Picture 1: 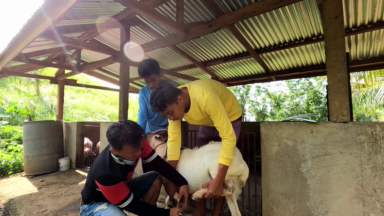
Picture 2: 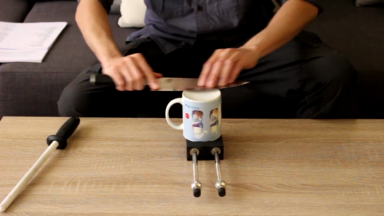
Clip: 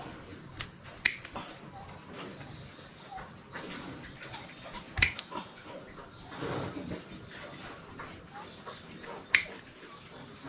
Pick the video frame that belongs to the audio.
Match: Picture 1